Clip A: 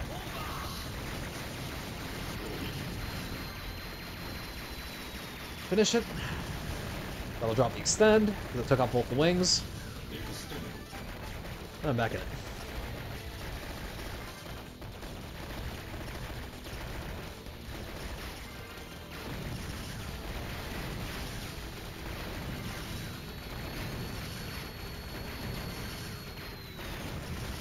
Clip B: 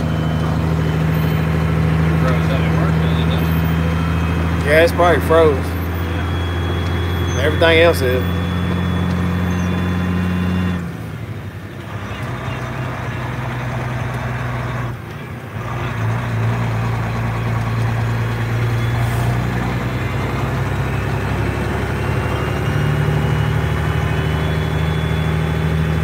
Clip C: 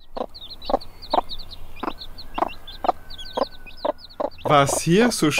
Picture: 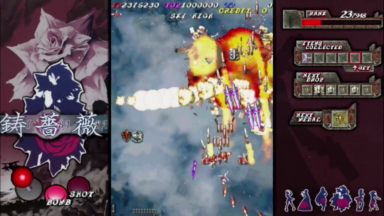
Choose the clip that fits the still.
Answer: A